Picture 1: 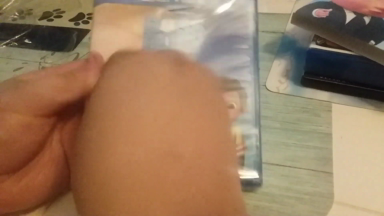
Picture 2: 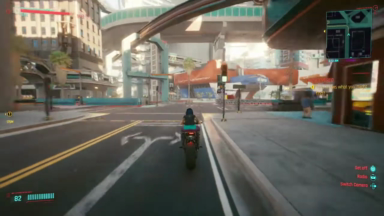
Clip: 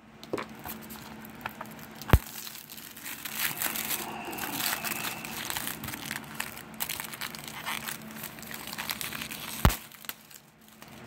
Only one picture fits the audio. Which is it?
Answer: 1